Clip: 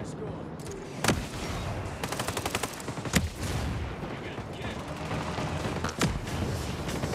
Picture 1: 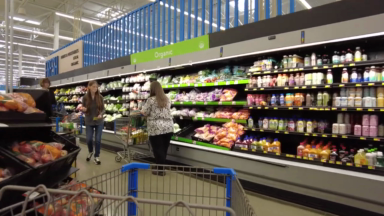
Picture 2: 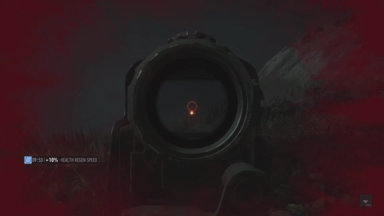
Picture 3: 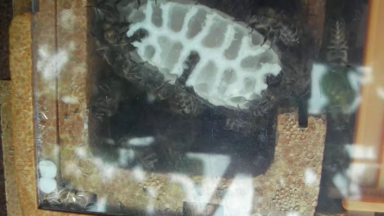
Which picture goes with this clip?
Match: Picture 2